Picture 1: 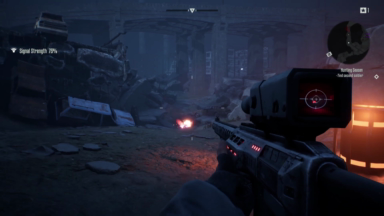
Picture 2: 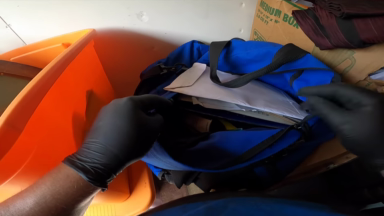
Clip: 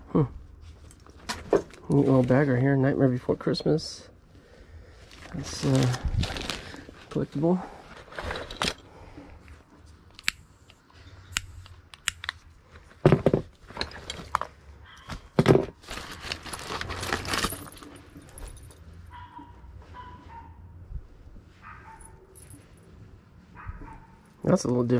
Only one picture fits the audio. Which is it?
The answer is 2